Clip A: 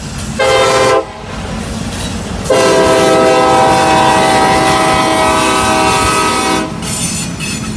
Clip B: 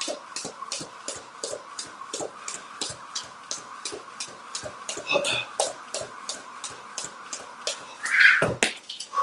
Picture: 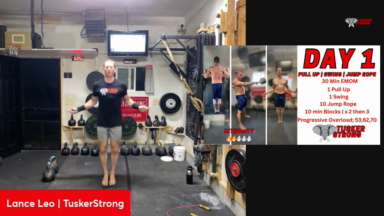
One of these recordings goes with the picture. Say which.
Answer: B